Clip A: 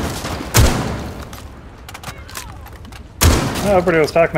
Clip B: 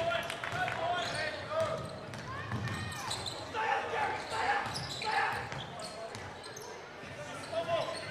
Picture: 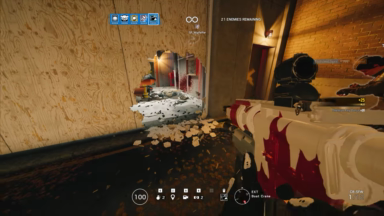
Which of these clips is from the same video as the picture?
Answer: A